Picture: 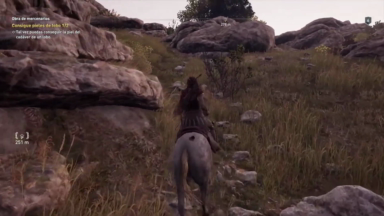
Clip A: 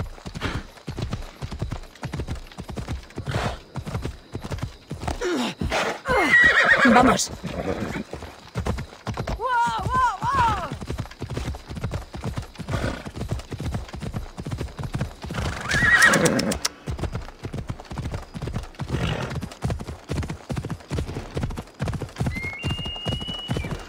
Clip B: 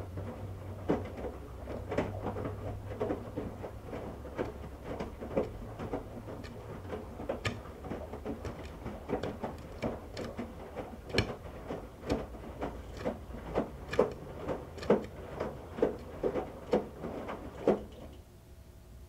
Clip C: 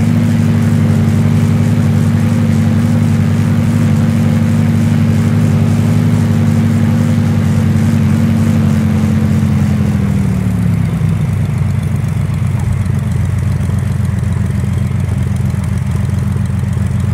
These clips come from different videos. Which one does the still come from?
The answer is A